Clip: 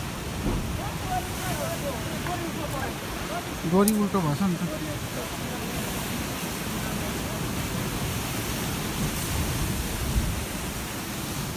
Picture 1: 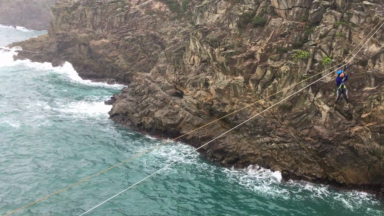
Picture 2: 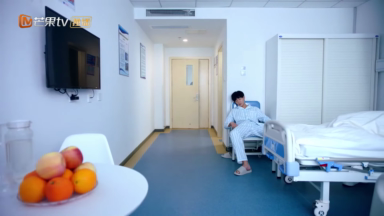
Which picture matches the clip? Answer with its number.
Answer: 1